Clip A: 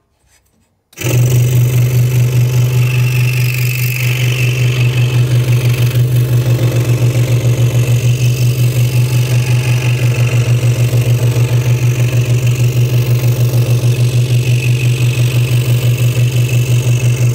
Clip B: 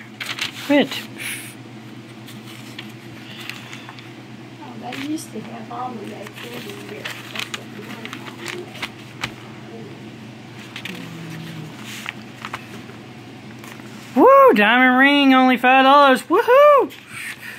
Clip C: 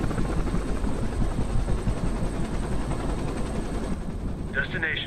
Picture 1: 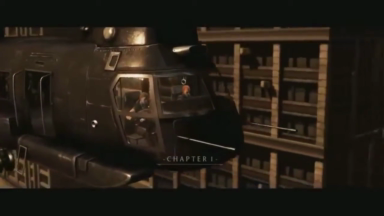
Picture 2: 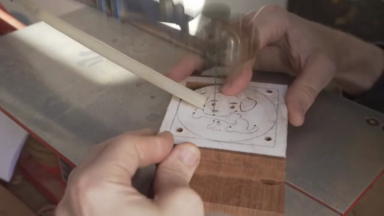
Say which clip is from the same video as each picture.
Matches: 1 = C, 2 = A